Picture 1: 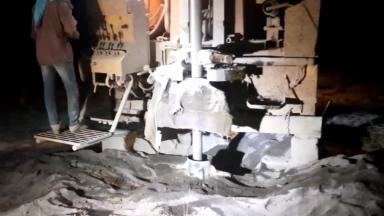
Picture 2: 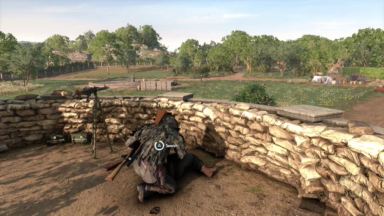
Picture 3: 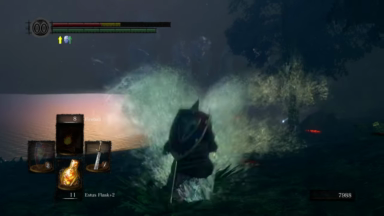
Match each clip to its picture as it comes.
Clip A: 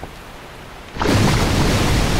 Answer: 3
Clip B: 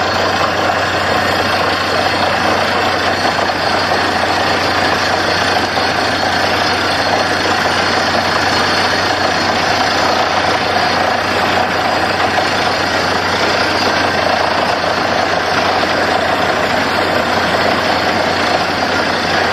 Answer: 1